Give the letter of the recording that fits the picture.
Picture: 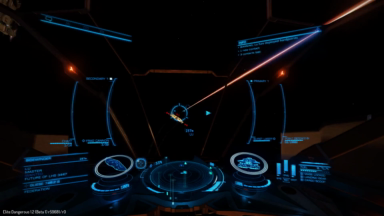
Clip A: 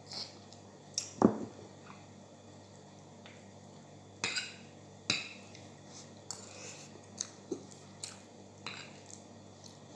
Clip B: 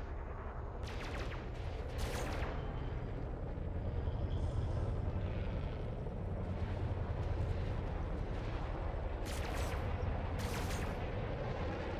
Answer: B